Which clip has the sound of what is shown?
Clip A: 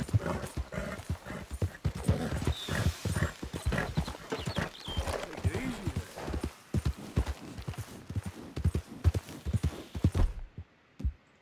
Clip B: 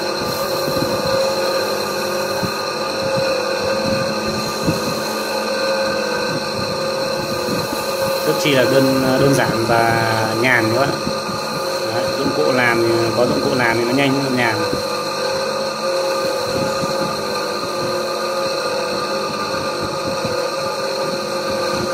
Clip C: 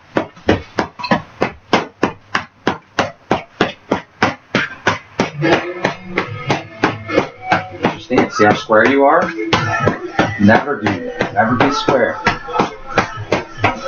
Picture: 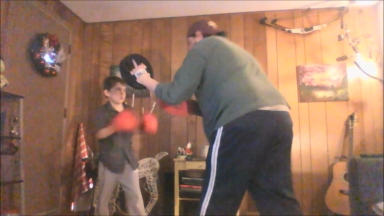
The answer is C